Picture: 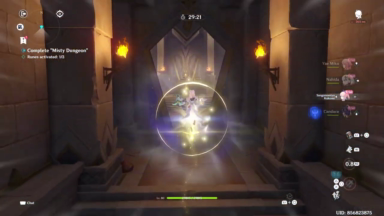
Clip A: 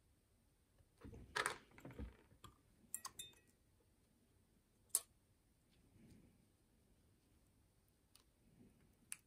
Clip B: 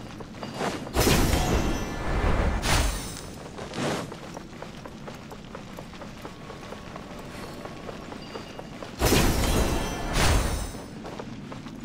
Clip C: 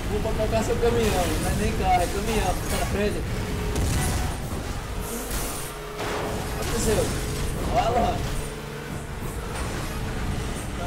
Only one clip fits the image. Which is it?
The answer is B